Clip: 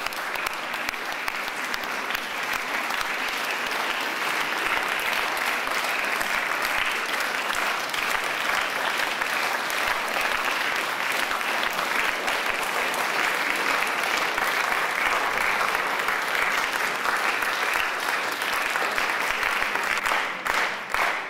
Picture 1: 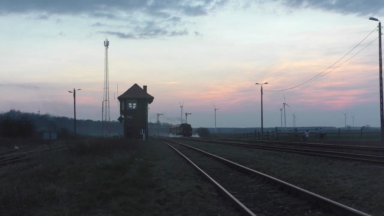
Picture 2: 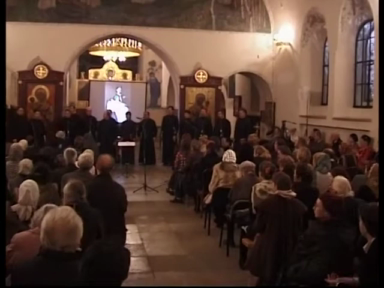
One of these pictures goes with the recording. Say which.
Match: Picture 2